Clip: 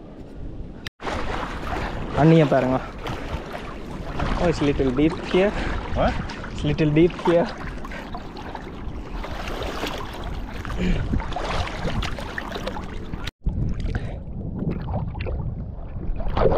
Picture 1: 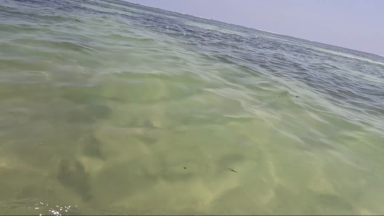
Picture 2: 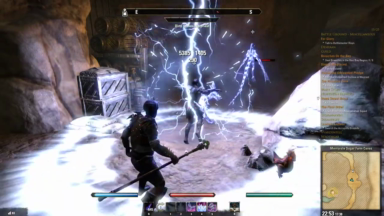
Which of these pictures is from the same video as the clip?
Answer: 1